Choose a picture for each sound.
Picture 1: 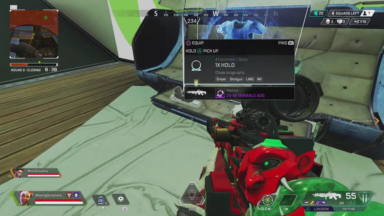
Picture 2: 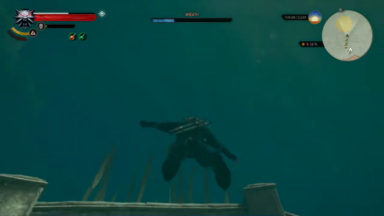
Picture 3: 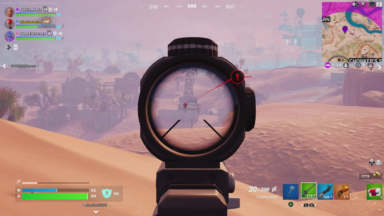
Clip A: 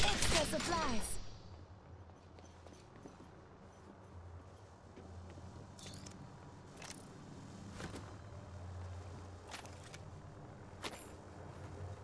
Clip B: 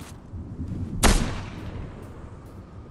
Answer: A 1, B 3